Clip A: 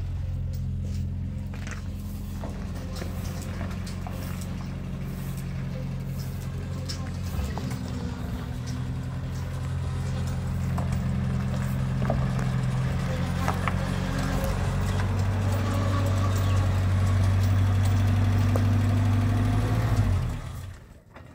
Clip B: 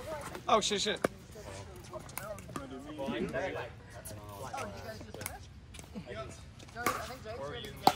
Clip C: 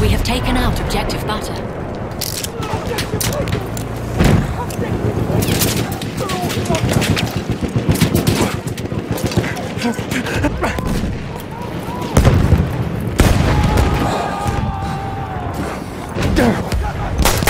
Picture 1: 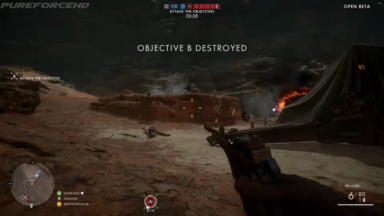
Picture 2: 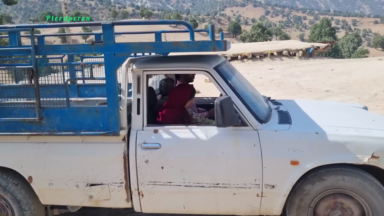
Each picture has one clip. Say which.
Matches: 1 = C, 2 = A